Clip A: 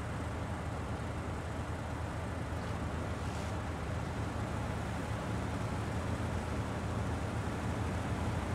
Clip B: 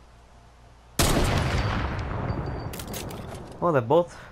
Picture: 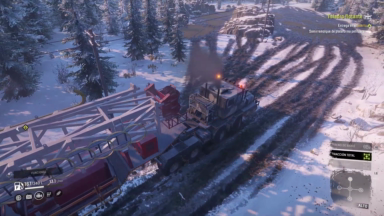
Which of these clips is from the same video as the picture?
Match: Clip A